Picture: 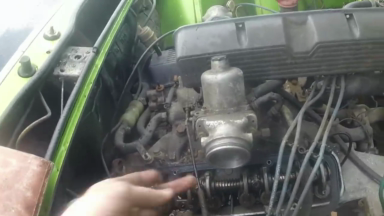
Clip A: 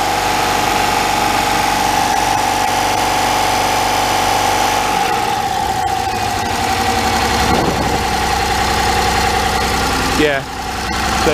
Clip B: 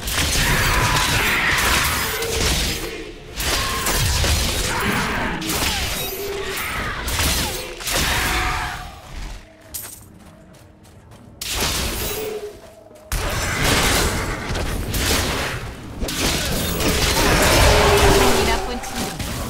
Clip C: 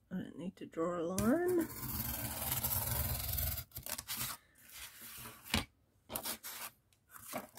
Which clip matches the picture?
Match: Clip A